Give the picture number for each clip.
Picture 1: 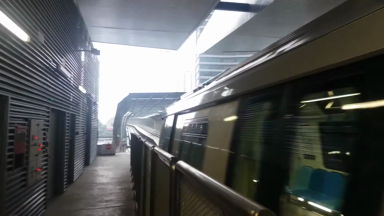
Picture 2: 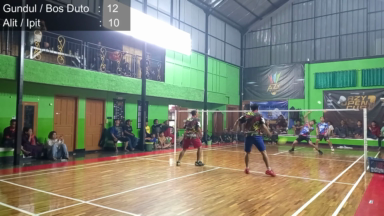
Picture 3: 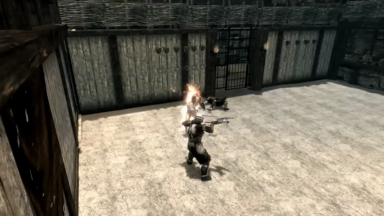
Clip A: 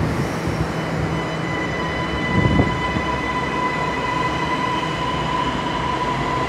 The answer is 1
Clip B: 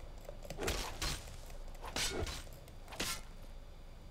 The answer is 3